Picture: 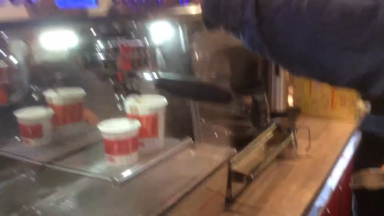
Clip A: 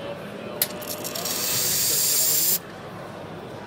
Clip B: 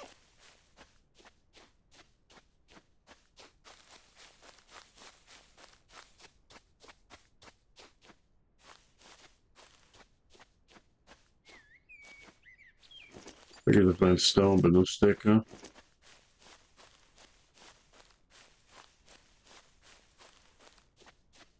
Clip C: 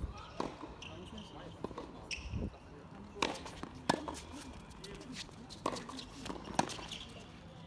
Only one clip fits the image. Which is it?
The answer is A